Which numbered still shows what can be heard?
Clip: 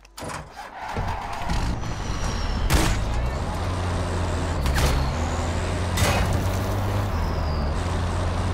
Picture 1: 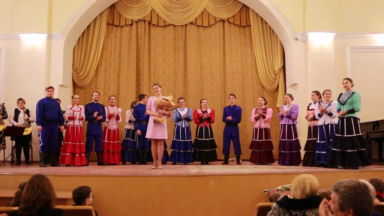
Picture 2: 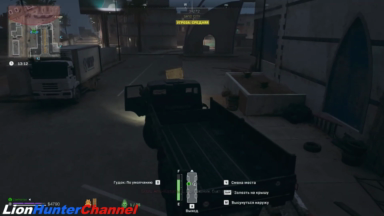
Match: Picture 2